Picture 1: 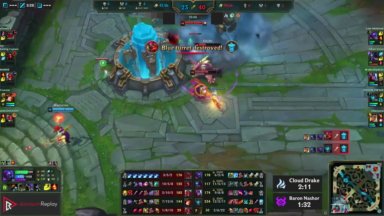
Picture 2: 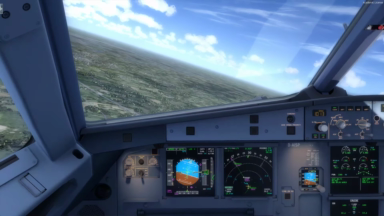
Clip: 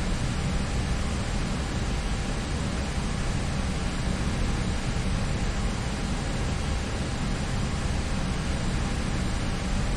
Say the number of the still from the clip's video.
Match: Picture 2